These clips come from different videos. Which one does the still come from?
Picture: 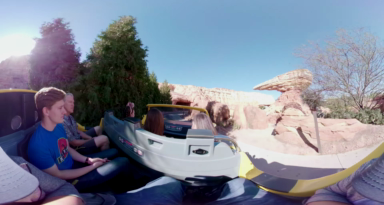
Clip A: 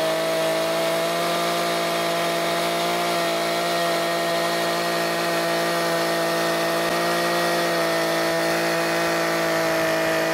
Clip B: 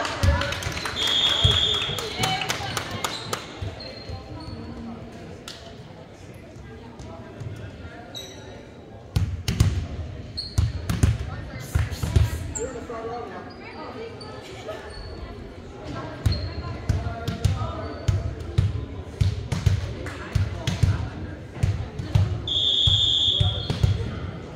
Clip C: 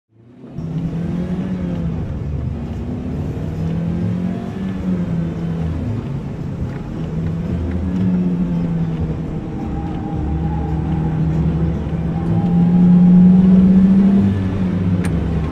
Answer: C